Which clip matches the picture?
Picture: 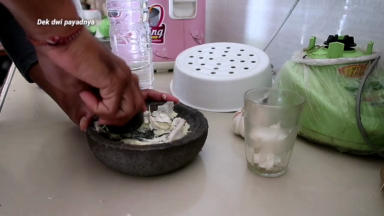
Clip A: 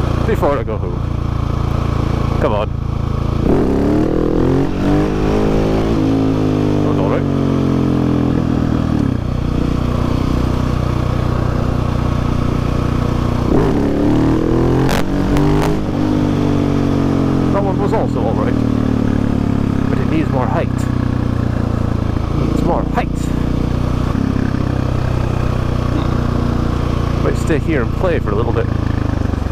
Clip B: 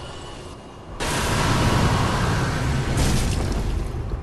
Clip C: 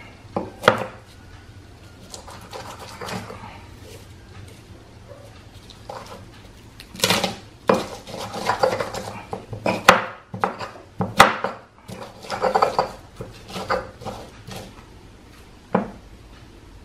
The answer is C